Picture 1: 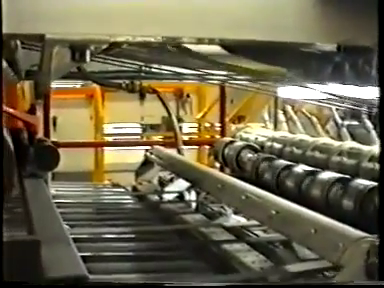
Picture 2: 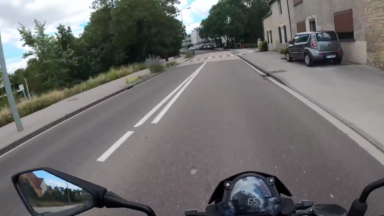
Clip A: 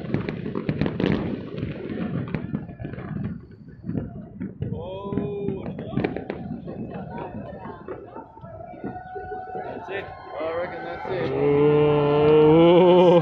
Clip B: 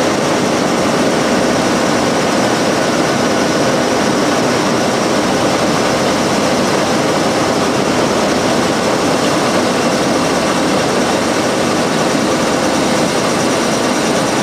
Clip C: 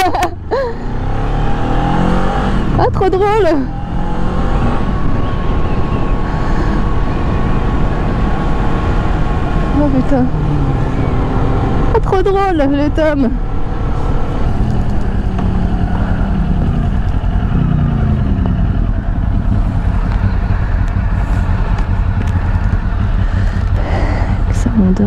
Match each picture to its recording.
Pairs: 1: B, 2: C